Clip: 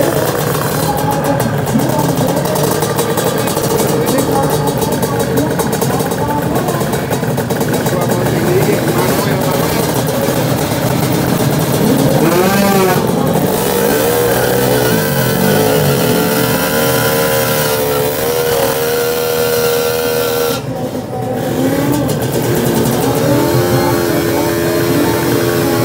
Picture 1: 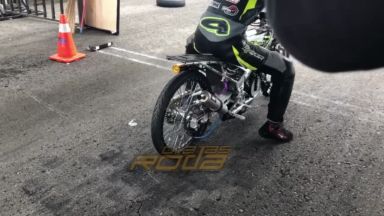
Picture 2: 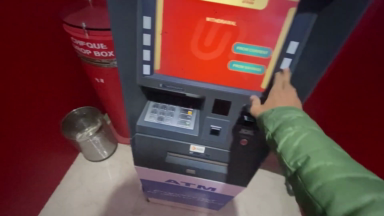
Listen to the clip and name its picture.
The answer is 1